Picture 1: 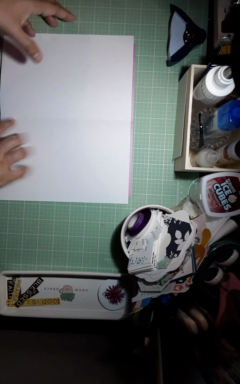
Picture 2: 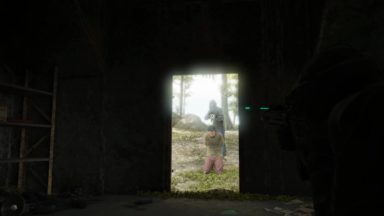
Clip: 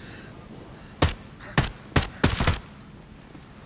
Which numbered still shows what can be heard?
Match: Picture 2